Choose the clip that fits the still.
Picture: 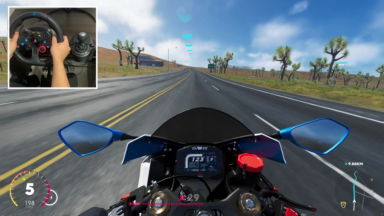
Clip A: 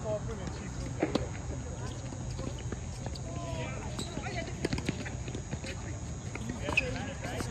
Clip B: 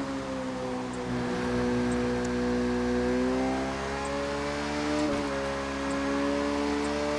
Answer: B